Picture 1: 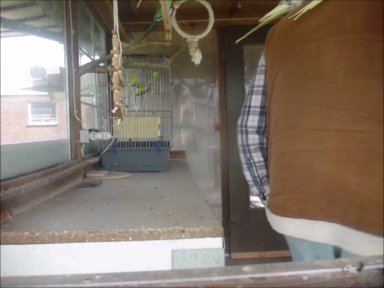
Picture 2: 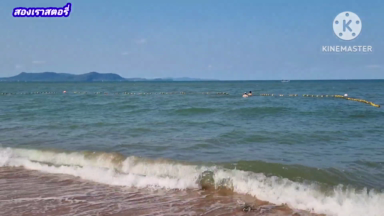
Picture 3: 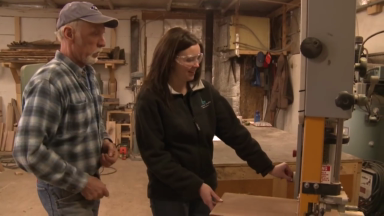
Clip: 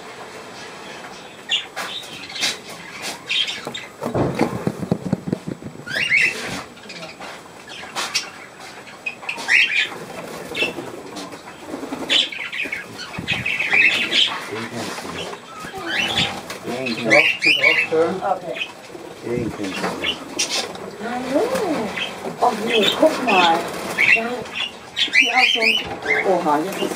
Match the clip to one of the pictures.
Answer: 1